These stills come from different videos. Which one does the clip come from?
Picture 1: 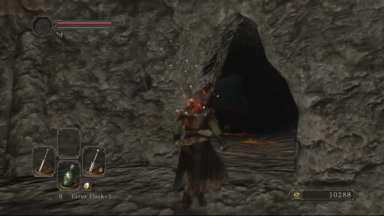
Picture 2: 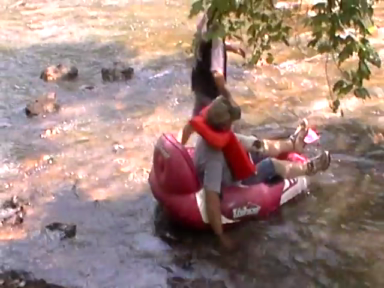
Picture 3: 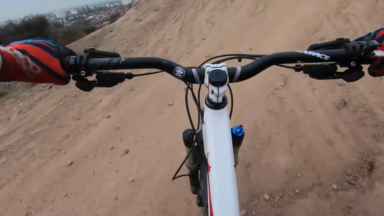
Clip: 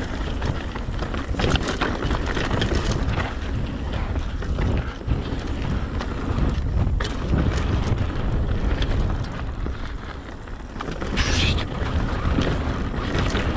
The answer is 3